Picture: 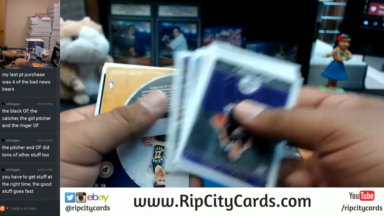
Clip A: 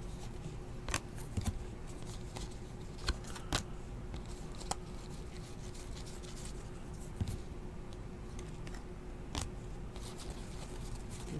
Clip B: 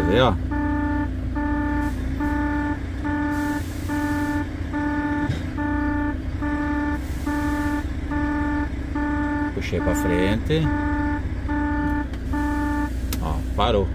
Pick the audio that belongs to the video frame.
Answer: A